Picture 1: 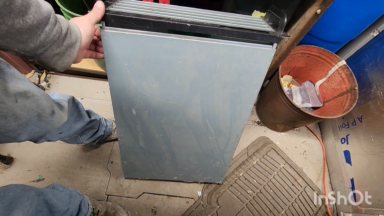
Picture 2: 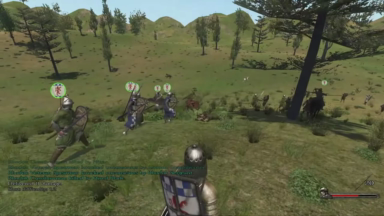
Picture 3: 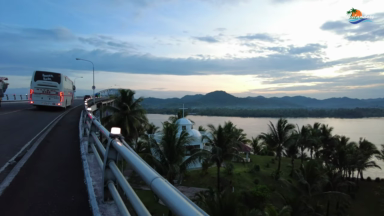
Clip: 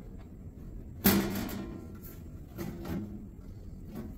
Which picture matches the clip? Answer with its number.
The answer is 1